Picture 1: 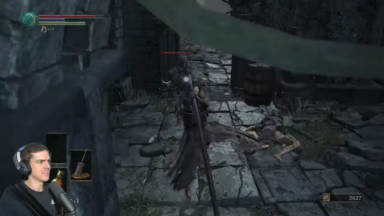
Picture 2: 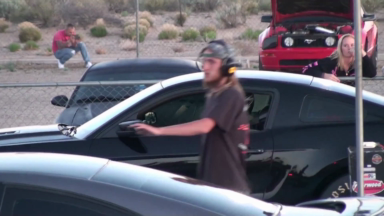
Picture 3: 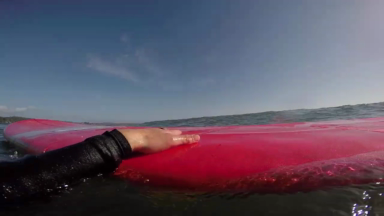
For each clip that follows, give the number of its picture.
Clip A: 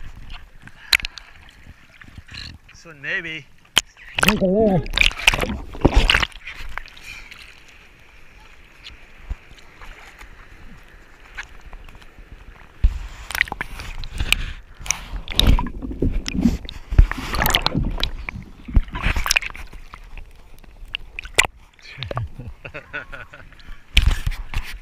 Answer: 3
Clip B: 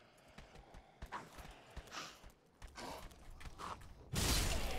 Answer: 1